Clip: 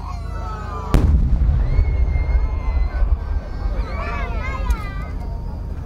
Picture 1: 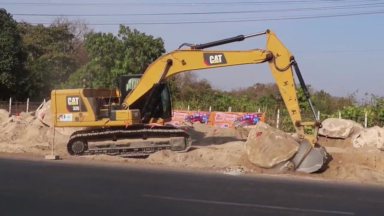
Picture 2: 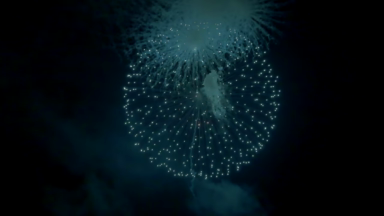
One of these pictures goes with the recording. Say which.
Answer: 2